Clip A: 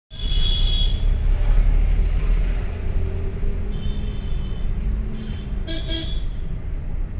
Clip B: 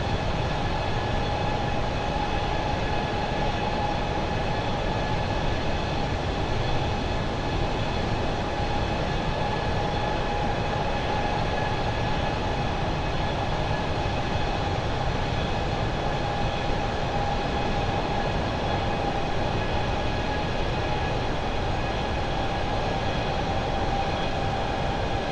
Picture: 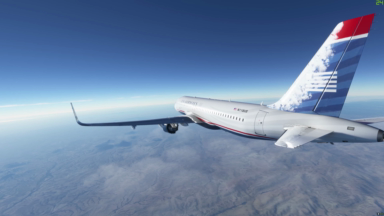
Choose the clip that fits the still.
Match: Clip B